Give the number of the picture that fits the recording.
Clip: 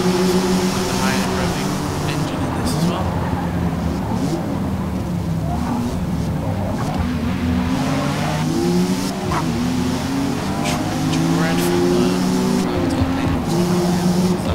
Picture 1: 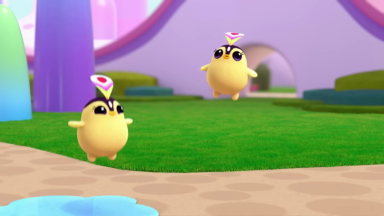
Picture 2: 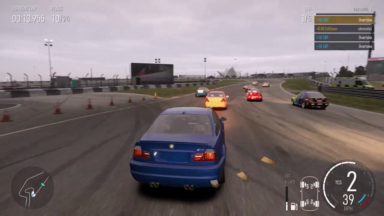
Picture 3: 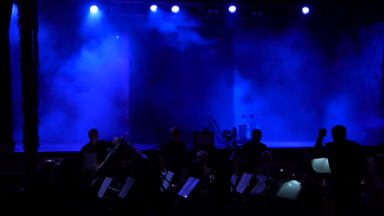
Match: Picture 2